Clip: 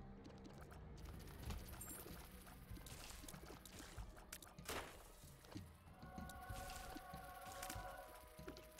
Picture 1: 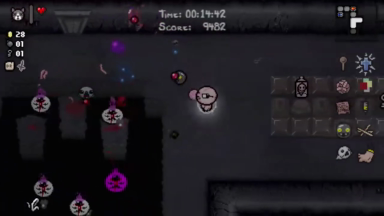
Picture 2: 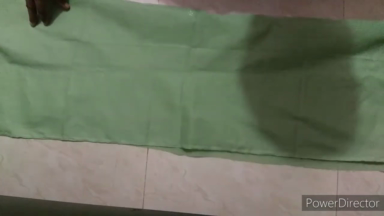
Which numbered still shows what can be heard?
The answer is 1